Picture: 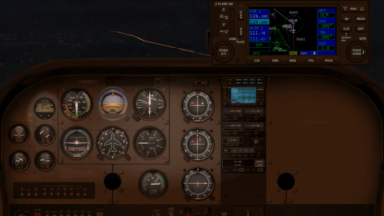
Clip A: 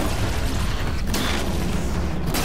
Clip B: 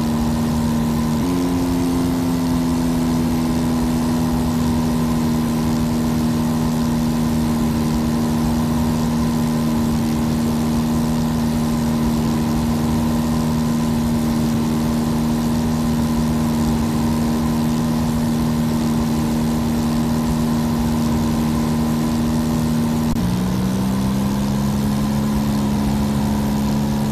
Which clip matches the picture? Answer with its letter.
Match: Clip B